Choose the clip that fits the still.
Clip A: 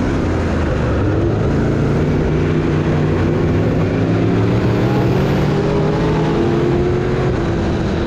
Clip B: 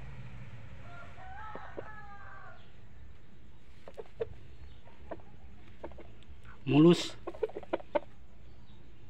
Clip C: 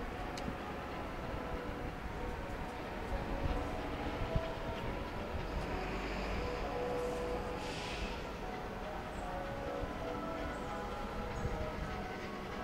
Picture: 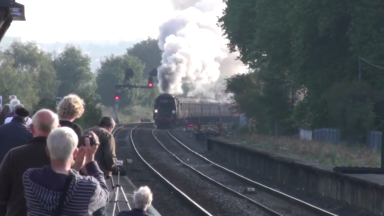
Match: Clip C